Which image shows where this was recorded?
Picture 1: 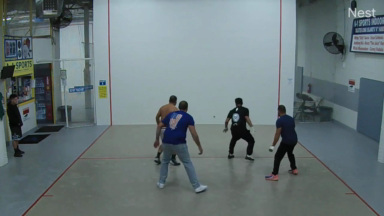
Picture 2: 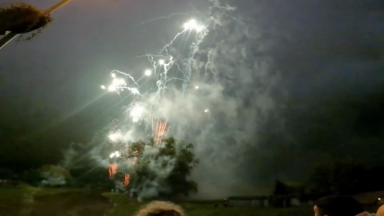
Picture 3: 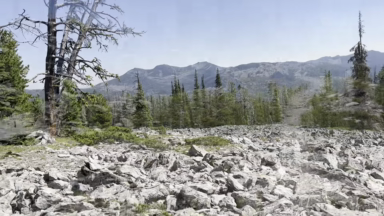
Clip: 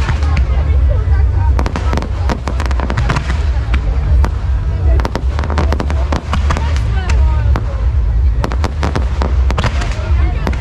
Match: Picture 2